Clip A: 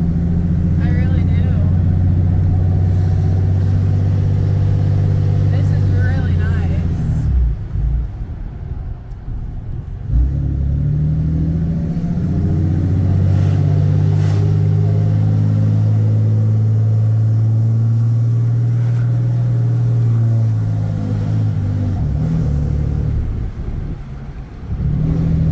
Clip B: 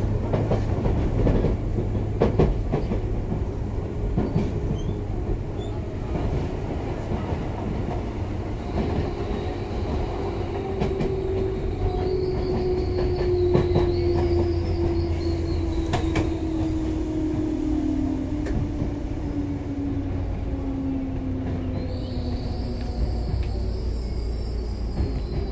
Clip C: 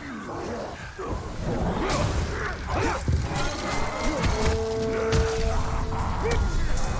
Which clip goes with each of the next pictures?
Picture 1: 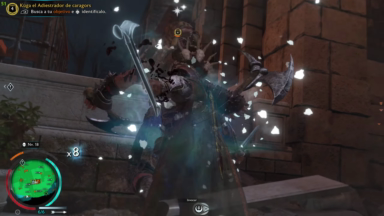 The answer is C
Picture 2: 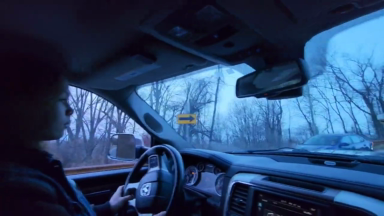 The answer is A